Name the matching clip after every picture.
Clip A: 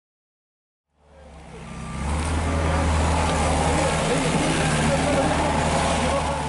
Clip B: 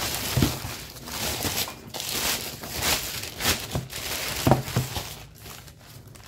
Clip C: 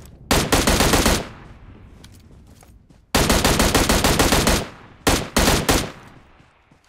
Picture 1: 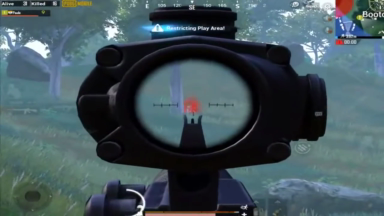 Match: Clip C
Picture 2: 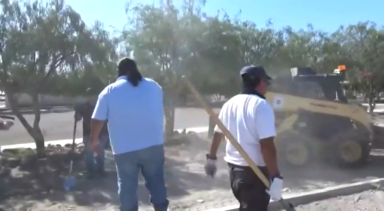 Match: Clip A